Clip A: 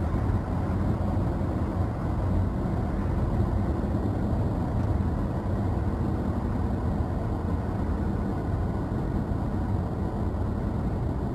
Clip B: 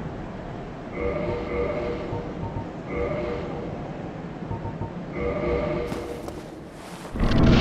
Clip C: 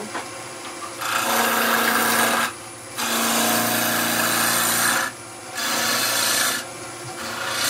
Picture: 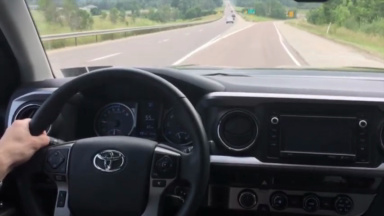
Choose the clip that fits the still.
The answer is A